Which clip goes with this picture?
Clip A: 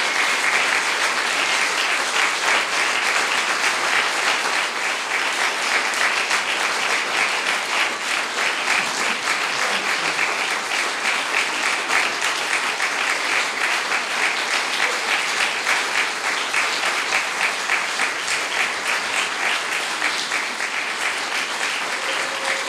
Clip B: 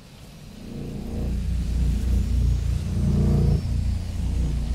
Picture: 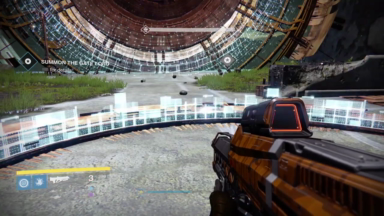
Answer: B